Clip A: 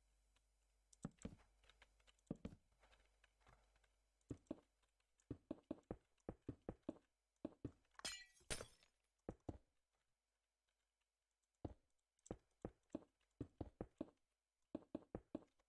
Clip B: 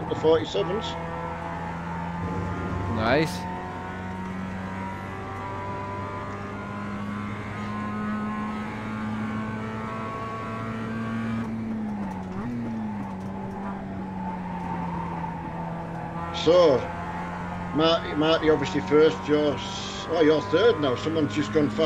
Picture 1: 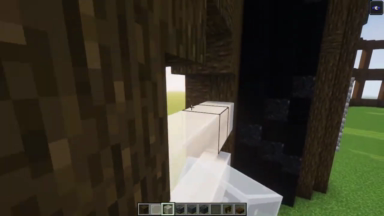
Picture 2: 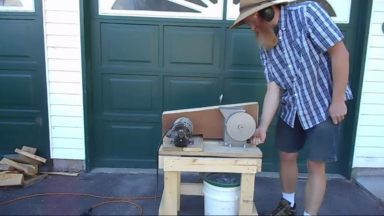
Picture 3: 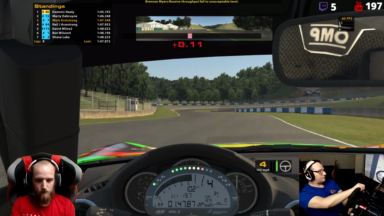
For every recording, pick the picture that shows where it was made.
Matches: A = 1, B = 3